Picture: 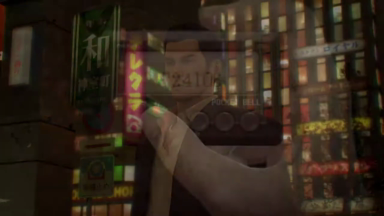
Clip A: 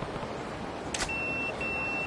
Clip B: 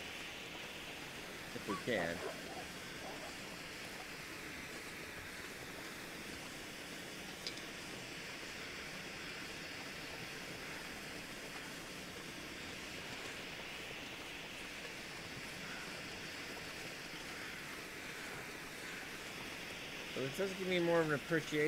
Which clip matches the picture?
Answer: A